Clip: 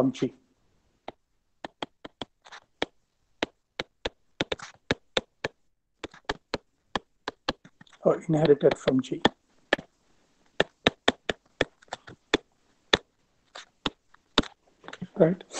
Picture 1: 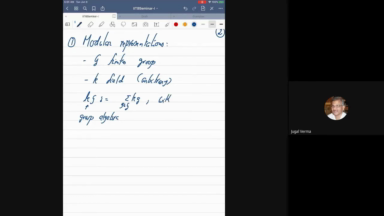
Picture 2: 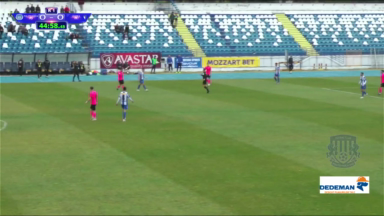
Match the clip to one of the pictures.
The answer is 1